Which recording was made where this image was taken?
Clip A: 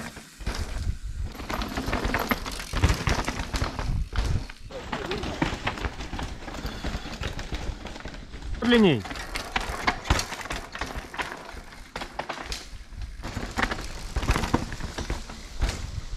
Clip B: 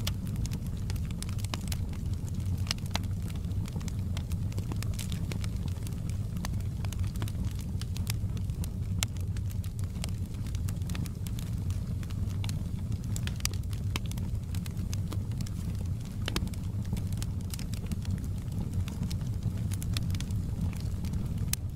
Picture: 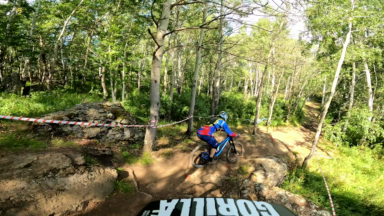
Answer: A